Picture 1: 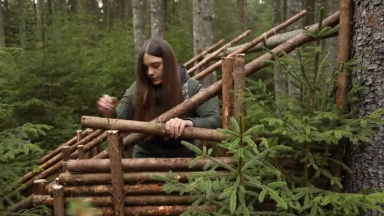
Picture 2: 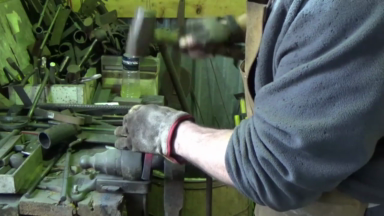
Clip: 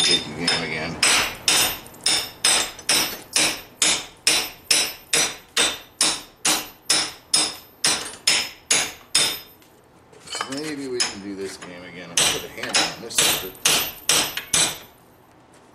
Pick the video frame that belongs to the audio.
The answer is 2